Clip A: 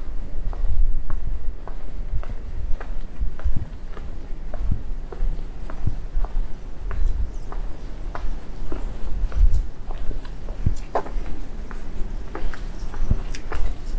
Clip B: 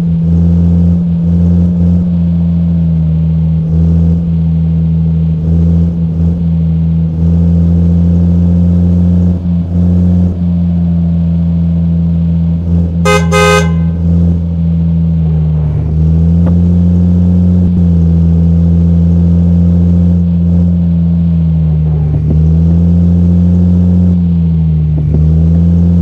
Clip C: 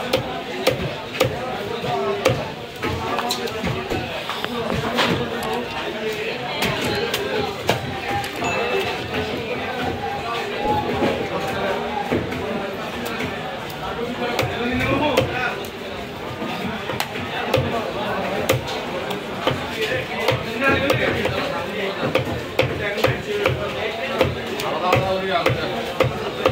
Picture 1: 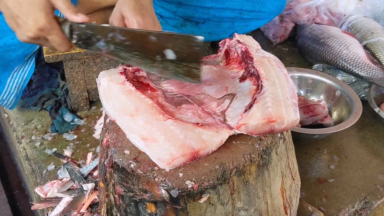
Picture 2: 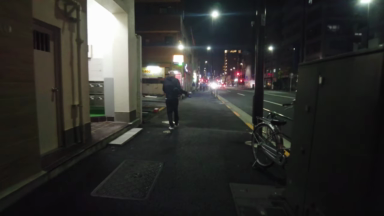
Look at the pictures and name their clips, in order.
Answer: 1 C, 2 A